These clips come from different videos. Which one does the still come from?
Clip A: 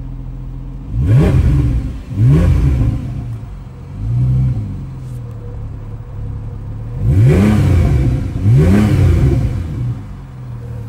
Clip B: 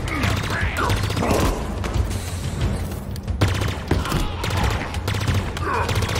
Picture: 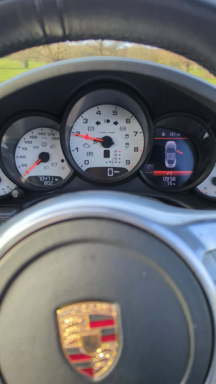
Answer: A